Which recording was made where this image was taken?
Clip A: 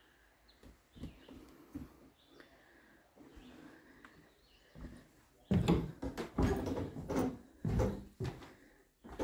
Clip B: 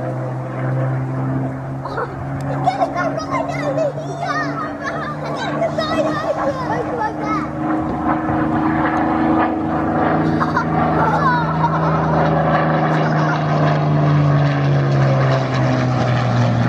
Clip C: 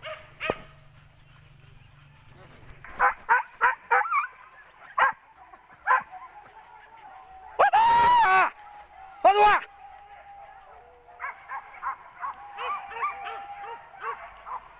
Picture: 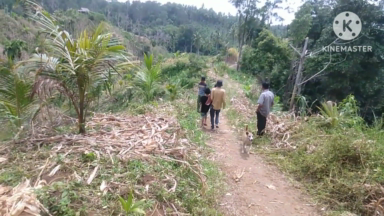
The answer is C